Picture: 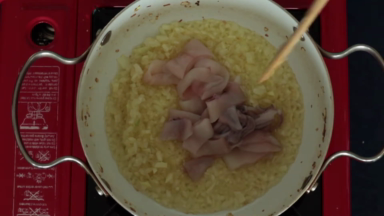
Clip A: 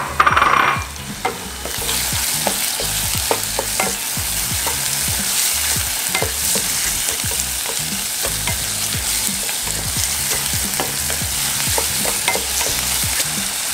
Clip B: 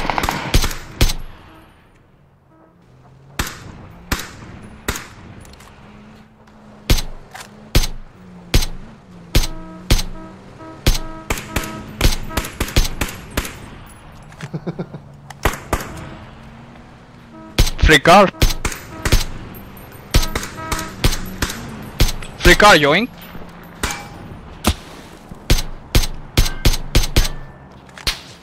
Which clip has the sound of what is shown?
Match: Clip A